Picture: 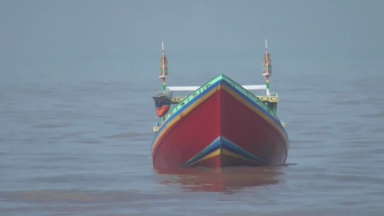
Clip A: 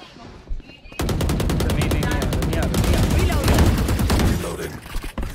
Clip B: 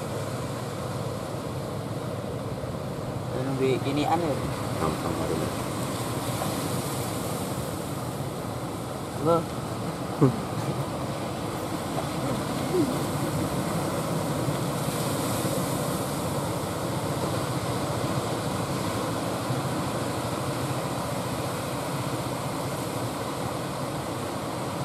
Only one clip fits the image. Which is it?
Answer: B